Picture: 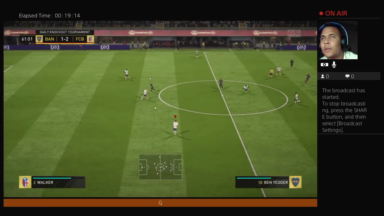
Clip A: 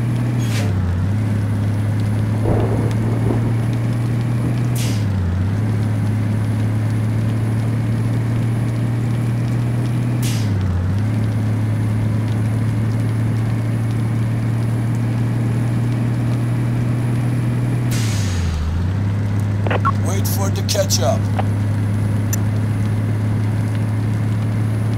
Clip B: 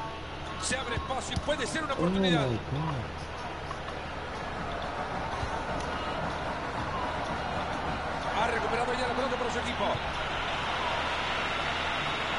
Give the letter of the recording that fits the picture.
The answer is B